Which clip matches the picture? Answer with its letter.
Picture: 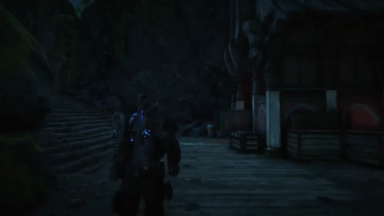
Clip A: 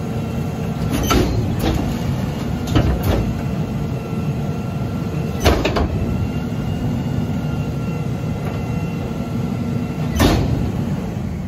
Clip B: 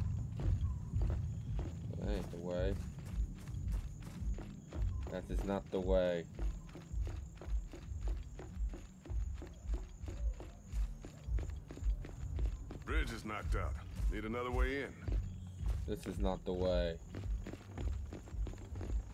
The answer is B